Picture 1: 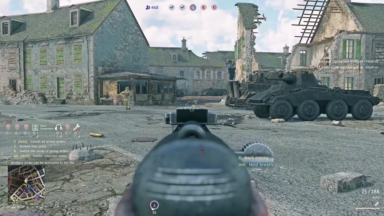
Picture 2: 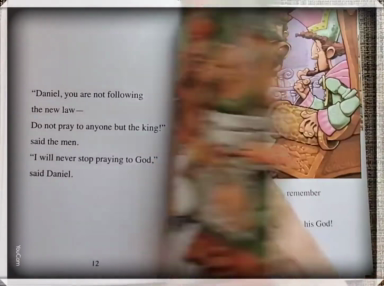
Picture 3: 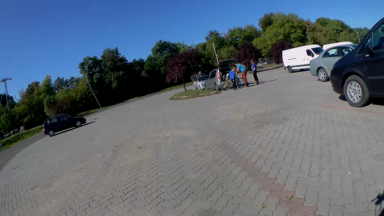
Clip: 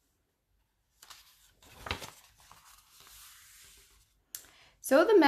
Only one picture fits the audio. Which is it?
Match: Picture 2